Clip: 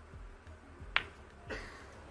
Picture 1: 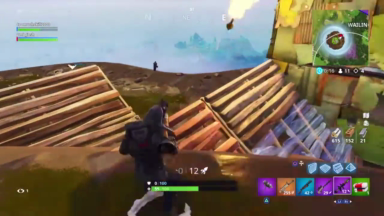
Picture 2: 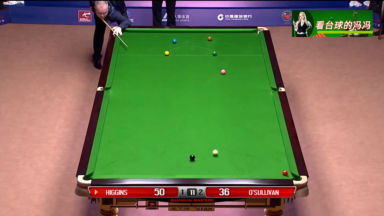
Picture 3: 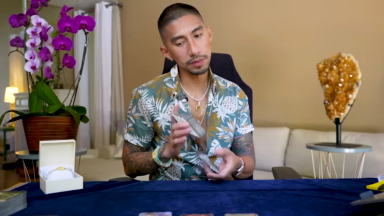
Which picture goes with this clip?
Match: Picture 2